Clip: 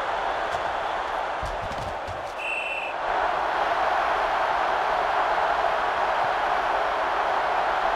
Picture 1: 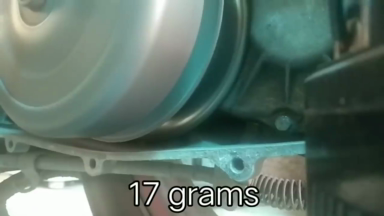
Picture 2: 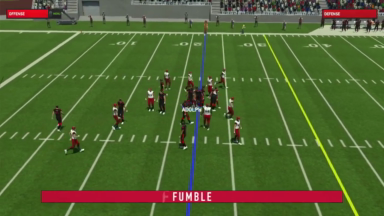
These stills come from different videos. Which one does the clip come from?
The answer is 2